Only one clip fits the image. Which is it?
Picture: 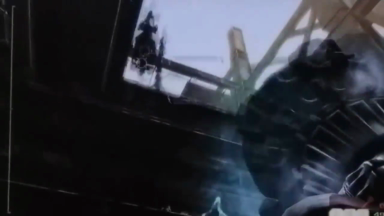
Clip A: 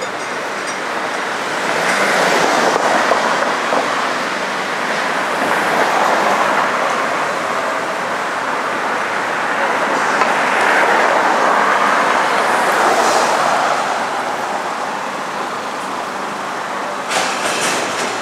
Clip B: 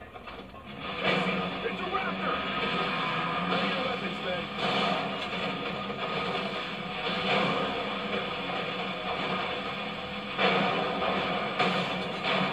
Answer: B